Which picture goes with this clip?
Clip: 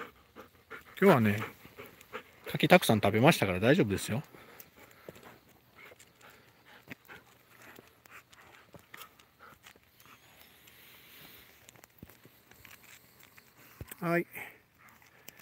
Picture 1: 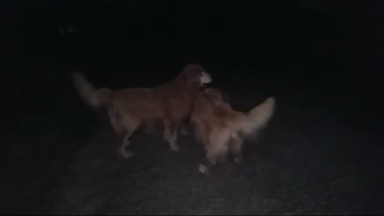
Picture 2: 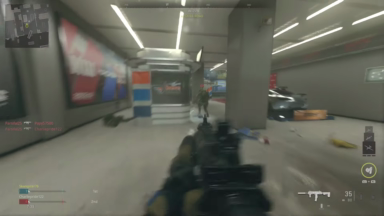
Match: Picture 1